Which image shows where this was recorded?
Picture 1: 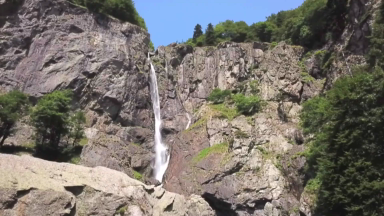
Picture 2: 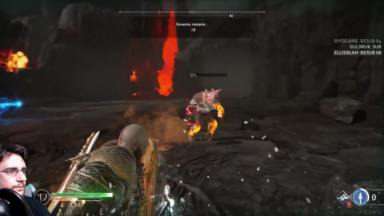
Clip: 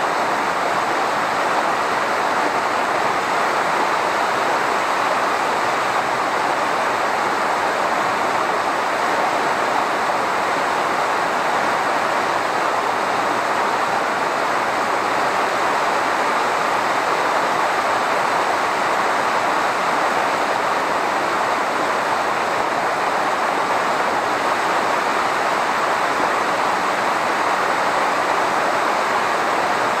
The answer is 1